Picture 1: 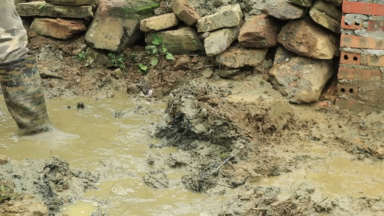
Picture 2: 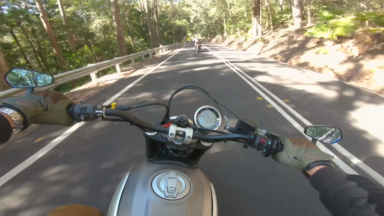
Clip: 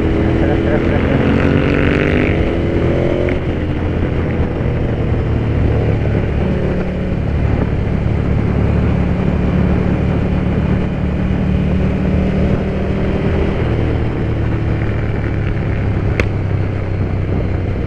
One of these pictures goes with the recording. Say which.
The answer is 2